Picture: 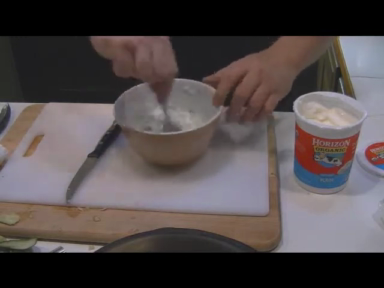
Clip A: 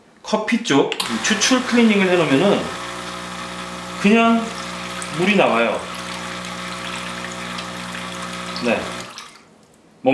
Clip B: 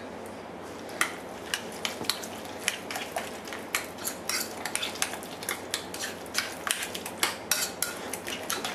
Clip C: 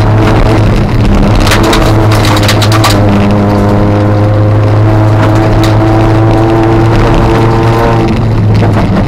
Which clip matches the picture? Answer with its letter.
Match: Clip B